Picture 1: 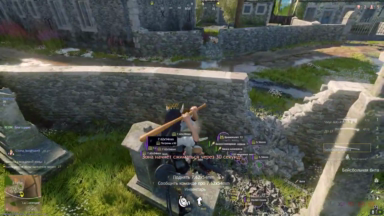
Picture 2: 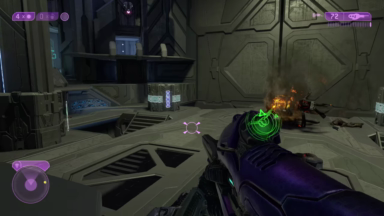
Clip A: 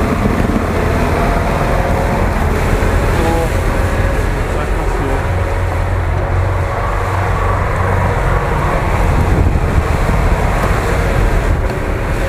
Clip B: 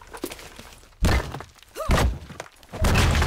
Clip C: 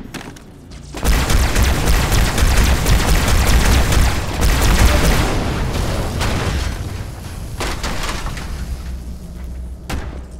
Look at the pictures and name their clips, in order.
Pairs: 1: B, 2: C